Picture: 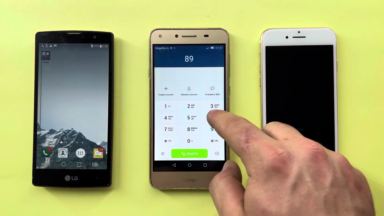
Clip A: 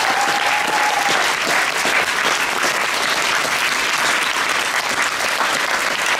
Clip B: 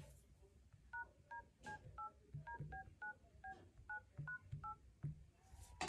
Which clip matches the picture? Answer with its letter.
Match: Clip B